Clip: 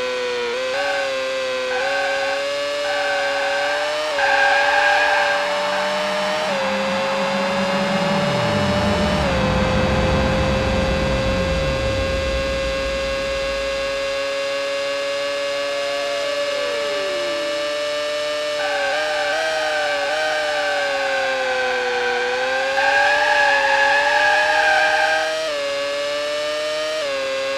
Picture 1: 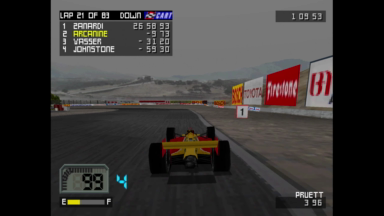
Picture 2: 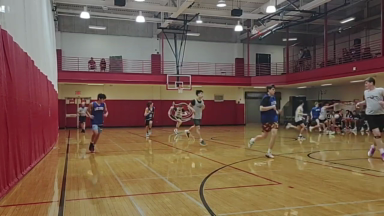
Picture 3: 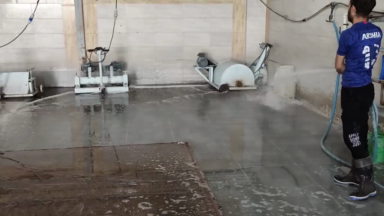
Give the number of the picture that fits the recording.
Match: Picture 1